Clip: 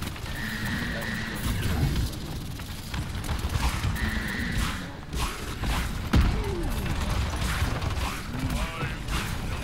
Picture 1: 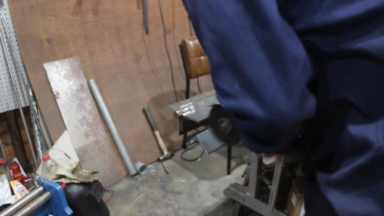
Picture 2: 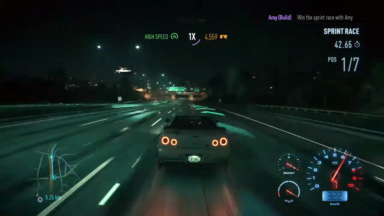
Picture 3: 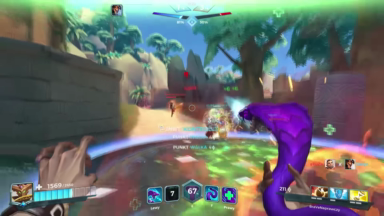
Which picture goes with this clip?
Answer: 3